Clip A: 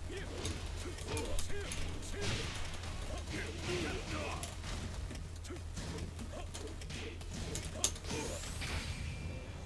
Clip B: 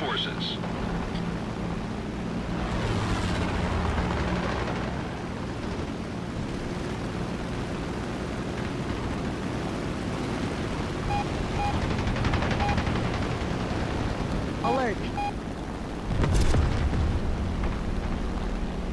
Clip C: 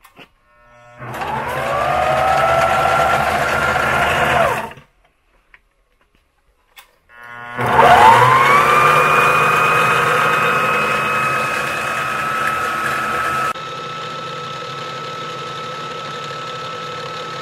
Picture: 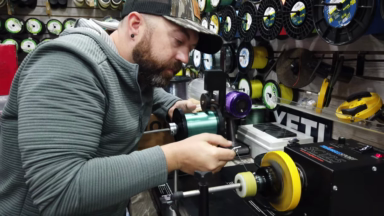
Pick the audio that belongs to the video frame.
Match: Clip C